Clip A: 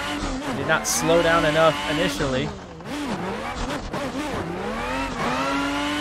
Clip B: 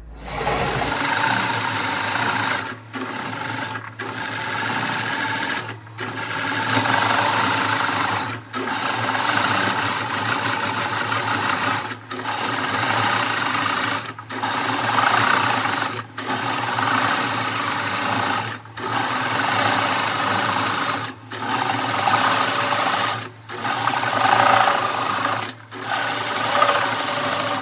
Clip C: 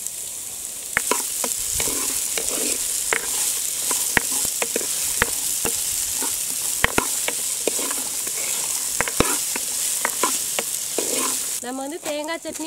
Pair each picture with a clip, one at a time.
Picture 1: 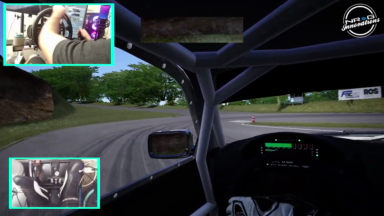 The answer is A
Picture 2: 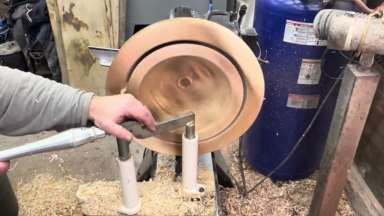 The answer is B